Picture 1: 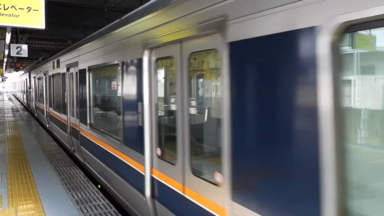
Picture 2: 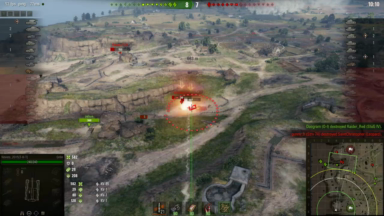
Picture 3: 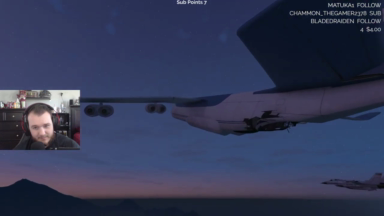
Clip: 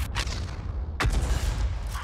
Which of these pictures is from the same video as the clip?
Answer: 2